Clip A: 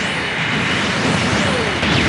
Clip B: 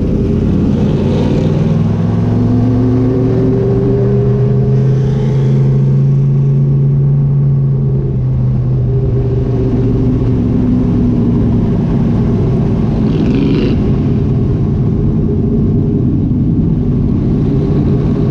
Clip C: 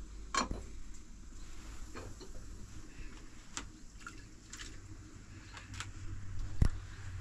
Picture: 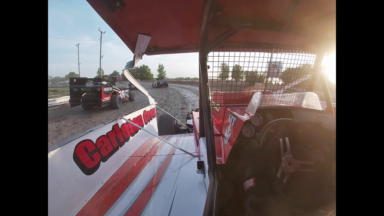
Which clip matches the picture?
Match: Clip B